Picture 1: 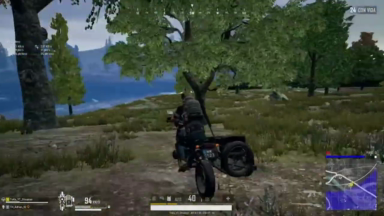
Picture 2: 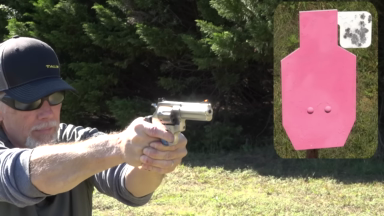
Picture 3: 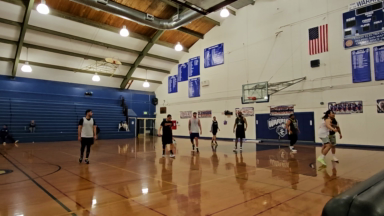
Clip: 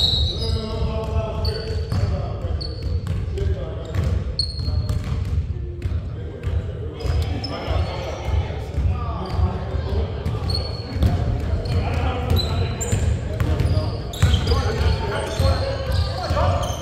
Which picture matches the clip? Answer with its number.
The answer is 3